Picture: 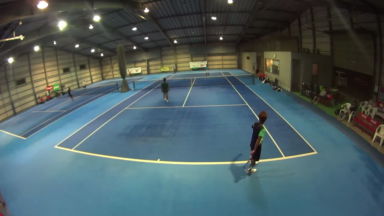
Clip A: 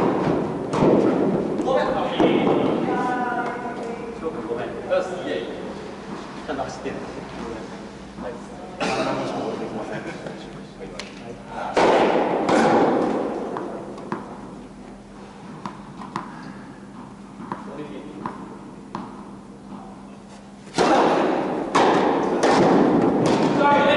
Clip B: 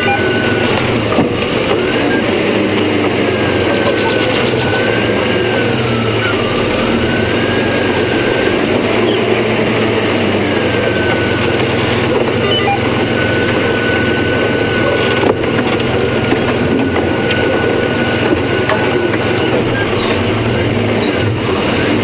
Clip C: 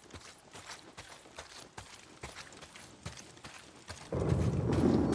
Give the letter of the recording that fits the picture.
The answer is A